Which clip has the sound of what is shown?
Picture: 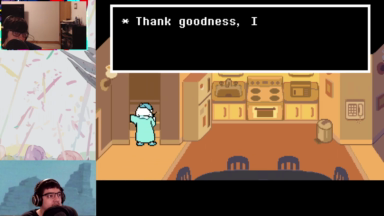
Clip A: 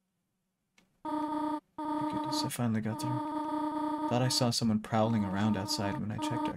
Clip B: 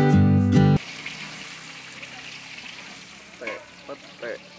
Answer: A